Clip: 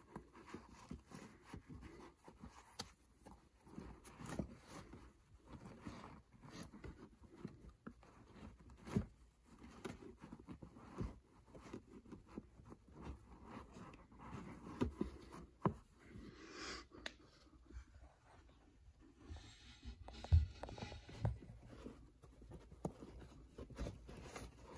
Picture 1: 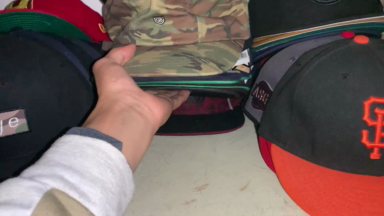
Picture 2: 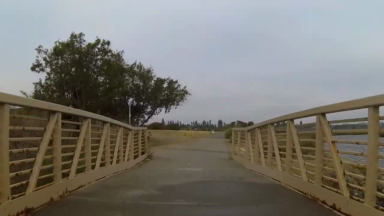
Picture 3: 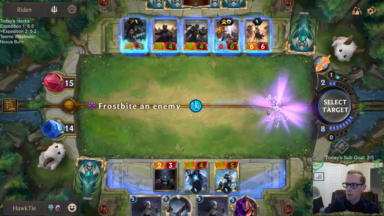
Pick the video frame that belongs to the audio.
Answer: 1